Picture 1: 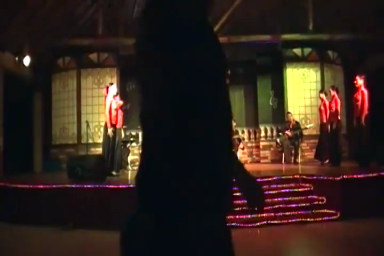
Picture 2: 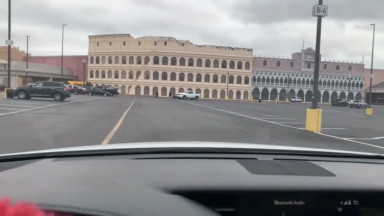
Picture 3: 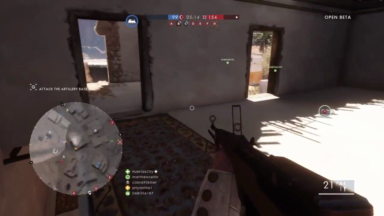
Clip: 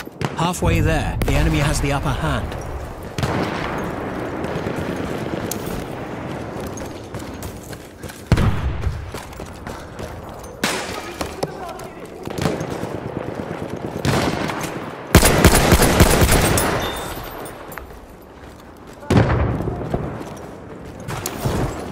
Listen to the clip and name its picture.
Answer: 3